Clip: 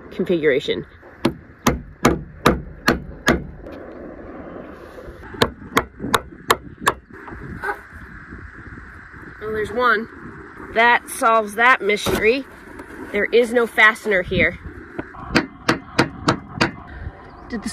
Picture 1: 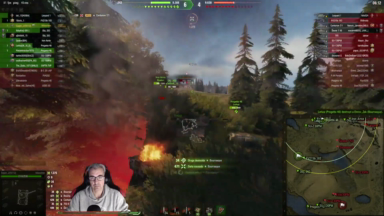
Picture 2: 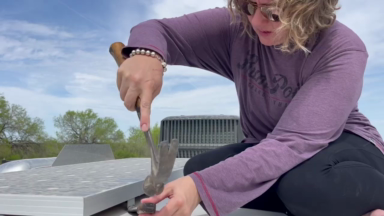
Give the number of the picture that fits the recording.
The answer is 2